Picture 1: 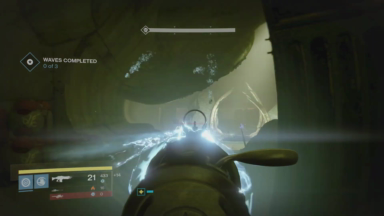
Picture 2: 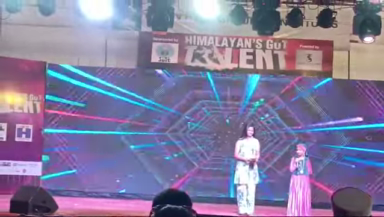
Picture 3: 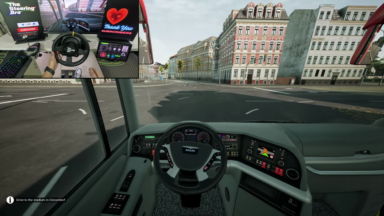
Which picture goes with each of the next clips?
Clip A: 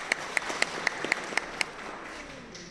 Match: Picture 2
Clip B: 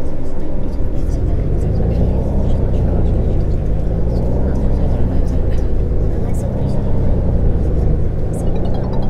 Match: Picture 3